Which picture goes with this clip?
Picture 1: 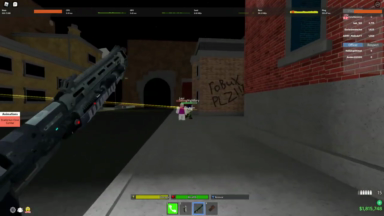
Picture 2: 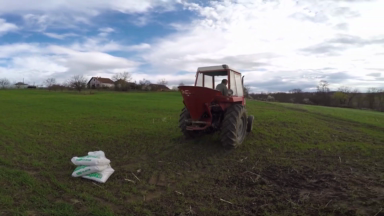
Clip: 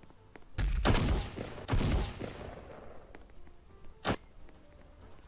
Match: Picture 1